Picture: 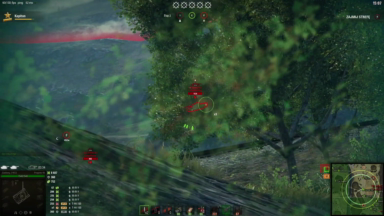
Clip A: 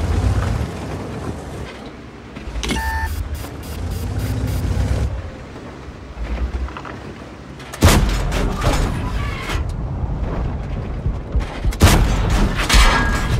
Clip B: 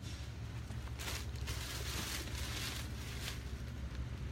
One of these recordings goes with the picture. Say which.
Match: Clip A